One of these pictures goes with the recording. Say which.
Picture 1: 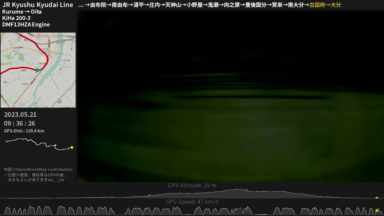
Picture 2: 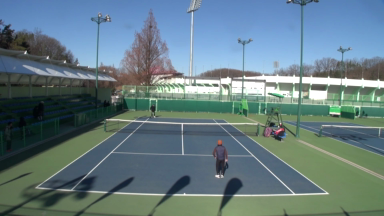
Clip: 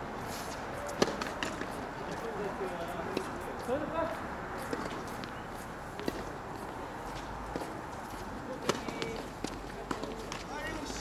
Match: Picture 2